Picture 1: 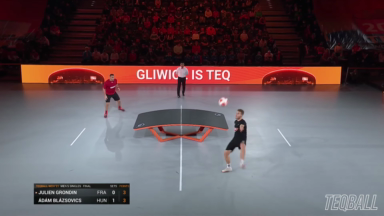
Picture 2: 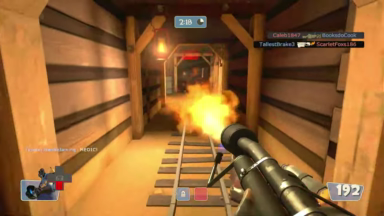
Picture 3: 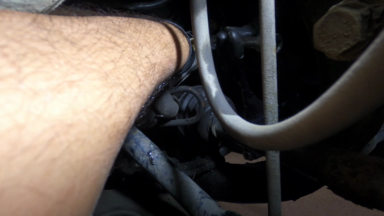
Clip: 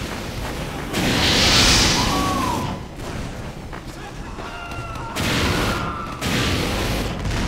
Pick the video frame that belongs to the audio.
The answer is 2